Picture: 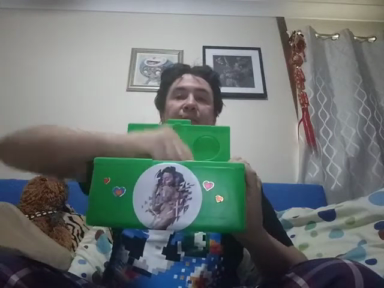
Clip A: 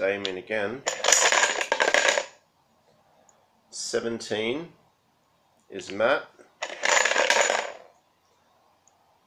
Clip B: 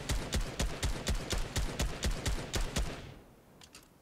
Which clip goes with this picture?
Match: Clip A